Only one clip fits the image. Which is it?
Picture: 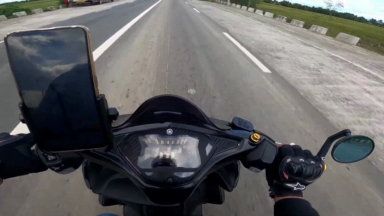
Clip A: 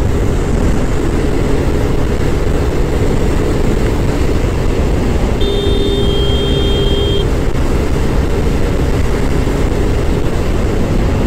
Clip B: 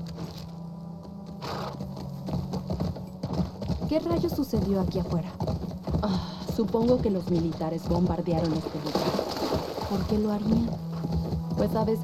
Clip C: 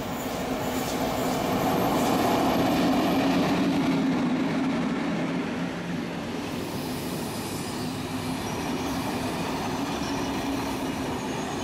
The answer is A